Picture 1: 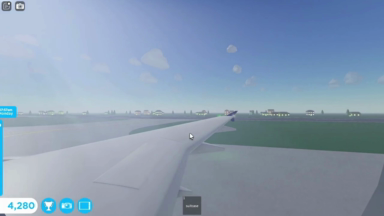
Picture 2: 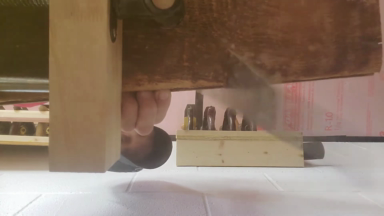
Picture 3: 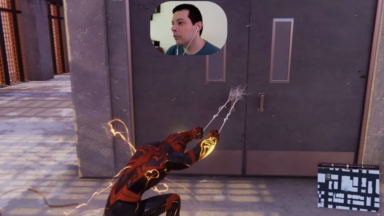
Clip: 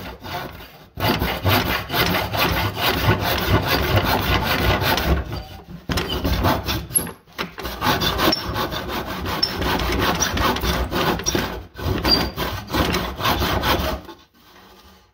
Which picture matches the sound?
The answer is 2